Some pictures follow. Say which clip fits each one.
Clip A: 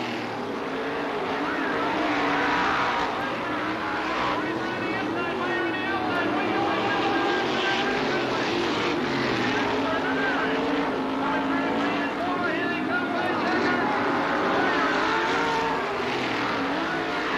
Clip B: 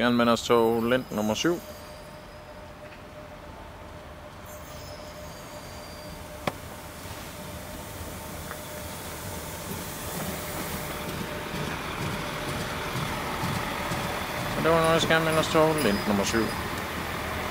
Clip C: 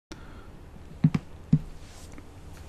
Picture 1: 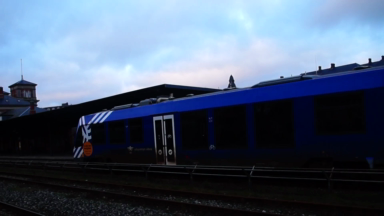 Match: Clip B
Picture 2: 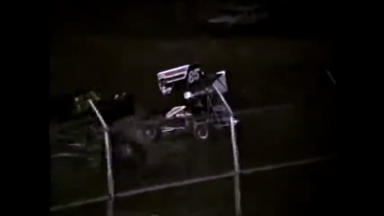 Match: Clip A